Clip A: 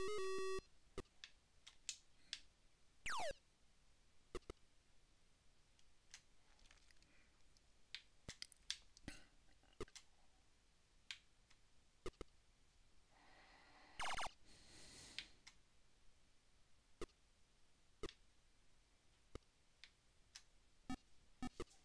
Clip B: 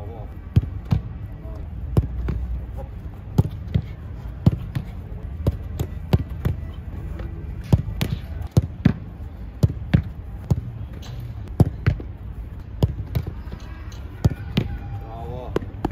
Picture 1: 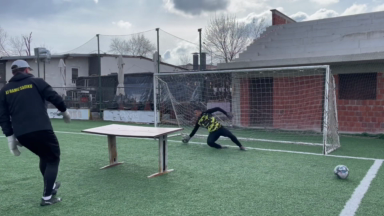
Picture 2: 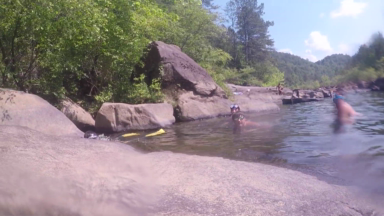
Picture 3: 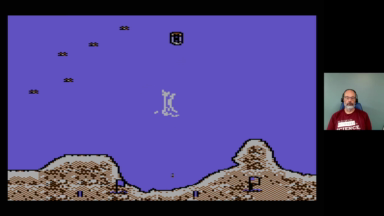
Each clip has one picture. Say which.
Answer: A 3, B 1